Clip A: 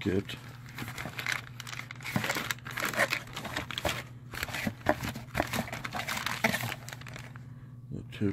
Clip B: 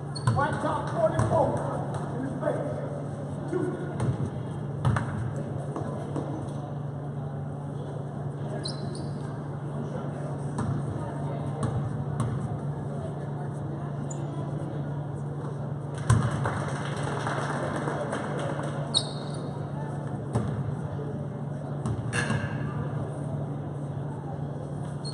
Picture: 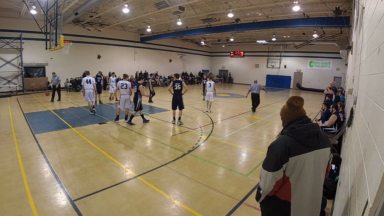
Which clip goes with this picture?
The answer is B